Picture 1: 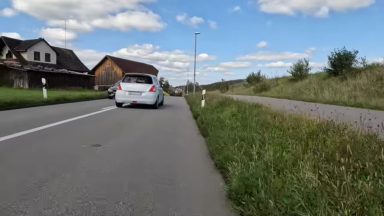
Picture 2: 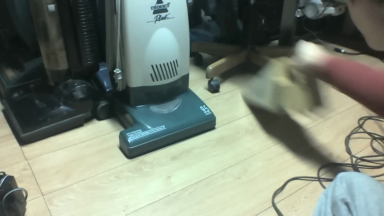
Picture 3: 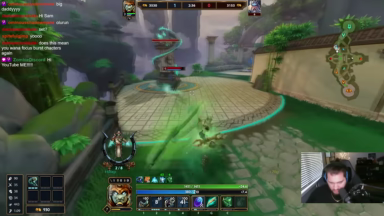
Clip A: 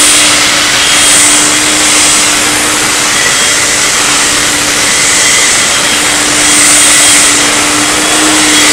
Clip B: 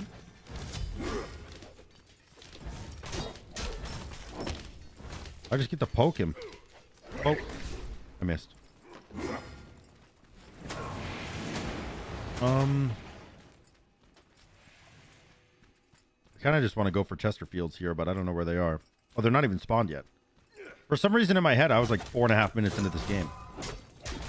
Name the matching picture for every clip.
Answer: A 2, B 3